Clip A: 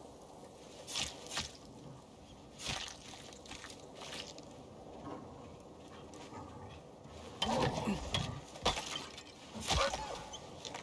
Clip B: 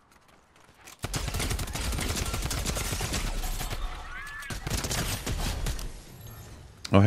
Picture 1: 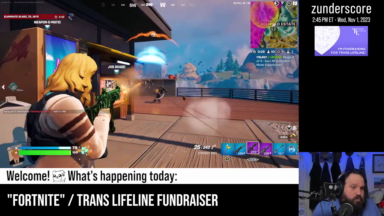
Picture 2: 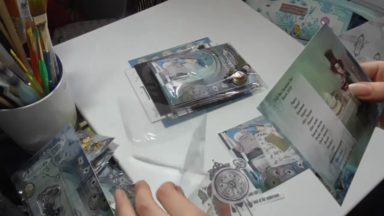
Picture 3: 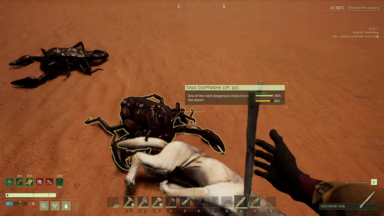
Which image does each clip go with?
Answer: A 3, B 1